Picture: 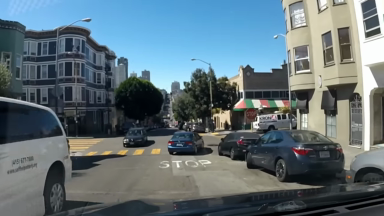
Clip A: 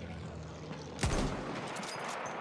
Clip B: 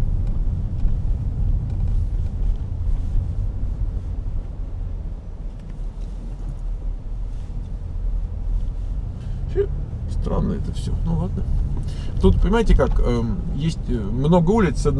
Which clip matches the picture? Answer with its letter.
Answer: B